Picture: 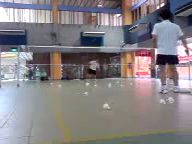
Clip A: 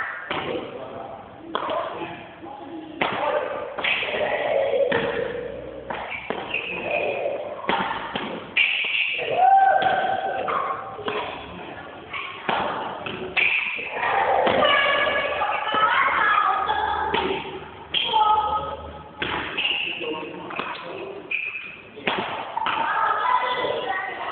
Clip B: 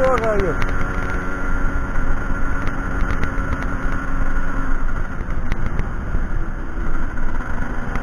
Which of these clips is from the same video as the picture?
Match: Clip A